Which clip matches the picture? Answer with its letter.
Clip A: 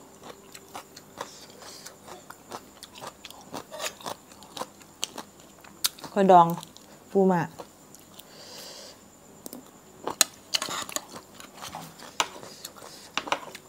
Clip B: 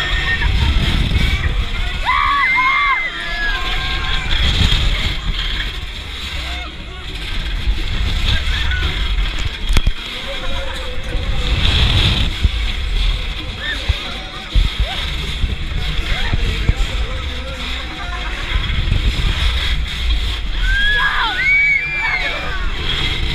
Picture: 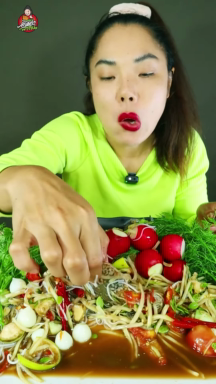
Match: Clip A